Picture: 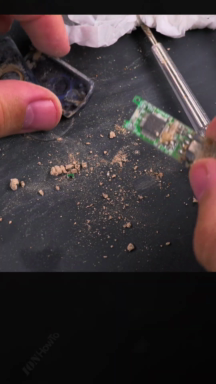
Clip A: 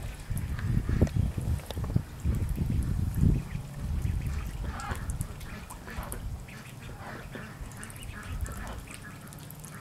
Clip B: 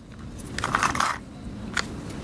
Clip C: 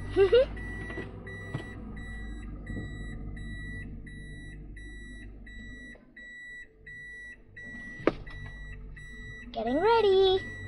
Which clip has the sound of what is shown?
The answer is B